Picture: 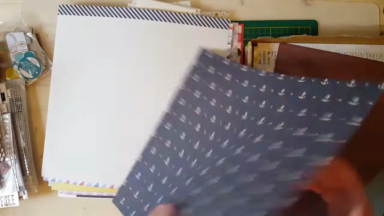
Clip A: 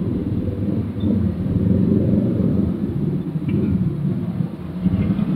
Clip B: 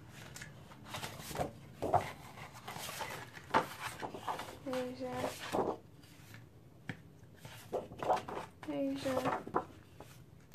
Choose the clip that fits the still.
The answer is B